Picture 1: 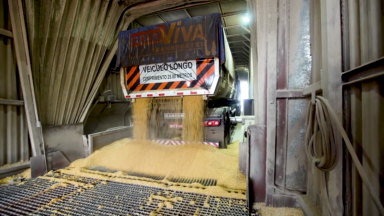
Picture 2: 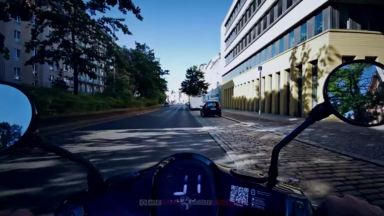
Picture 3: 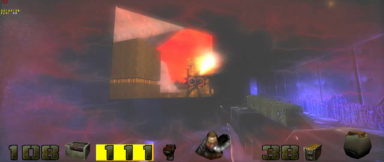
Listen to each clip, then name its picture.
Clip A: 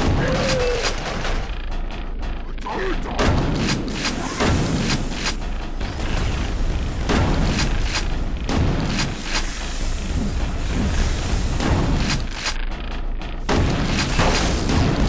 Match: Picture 3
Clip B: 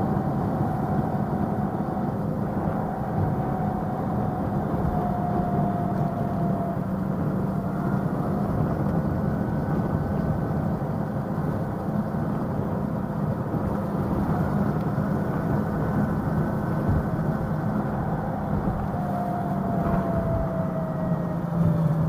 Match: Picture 2